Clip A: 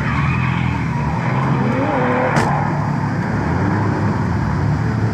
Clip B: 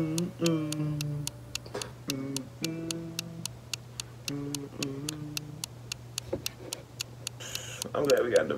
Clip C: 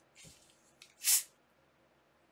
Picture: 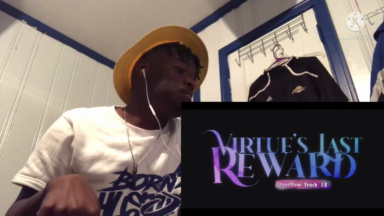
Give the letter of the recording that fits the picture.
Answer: B